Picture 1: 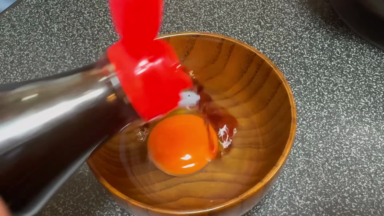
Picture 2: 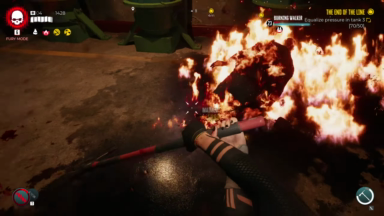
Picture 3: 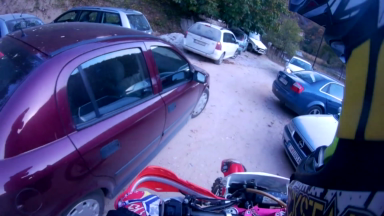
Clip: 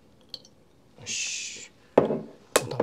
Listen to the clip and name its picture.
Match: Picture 1